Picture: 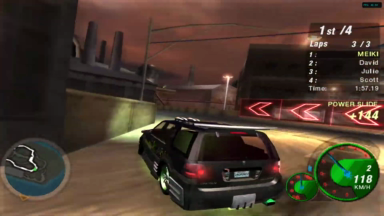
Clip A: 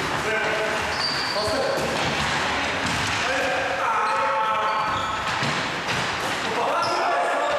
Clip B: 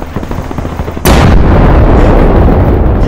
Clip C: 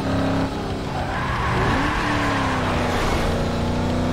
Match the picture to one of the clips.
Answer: C